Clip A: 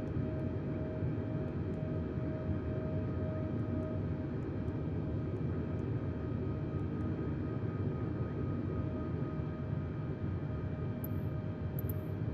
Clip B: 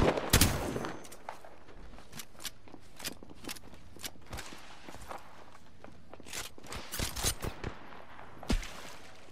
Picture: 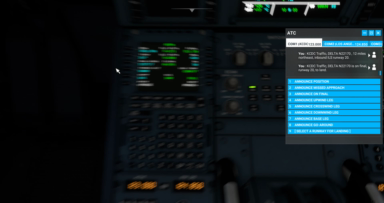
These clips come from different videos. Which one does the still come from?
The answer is A